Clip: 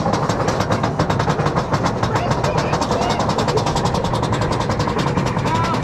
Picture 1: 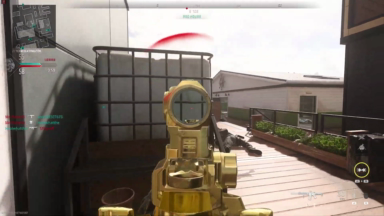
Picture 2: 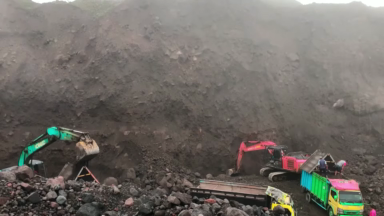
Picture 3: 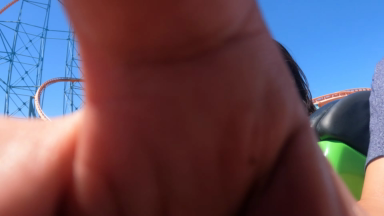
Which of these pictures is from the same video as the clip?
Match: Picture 3